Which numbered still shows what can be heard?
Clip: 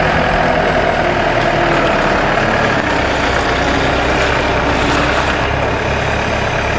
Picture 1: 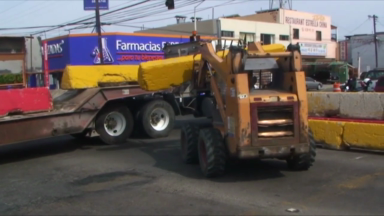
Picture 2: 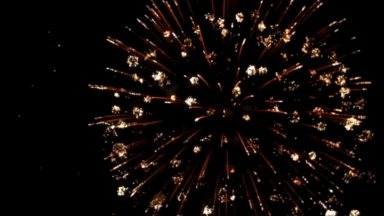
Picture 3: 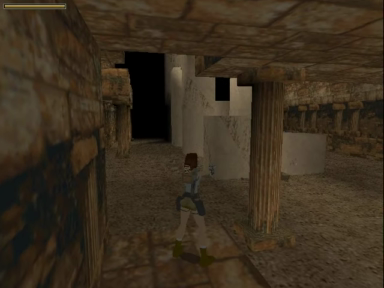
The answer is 1